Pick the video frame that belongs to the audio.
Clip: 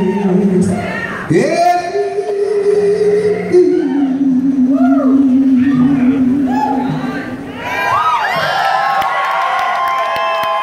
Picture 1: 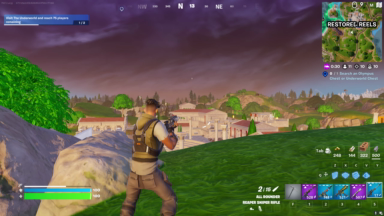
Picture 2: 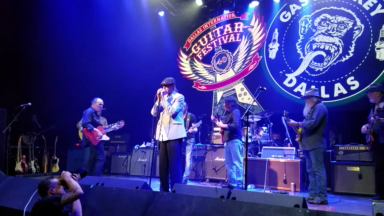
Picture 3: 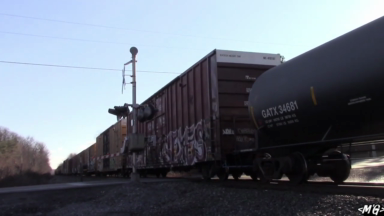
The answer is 2